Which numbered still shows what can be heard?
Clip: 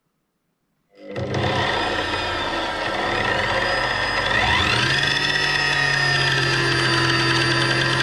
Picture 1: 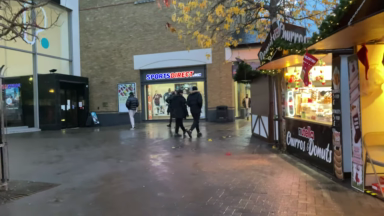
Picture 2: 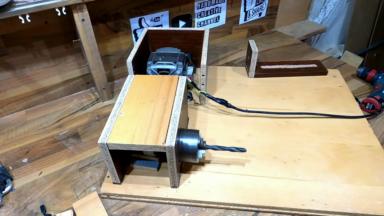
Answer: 2